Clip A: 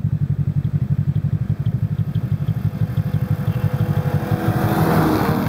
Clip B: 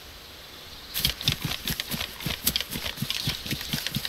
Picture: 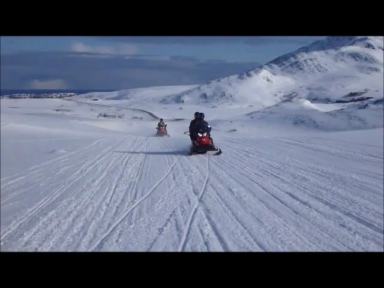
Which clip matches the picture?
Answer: A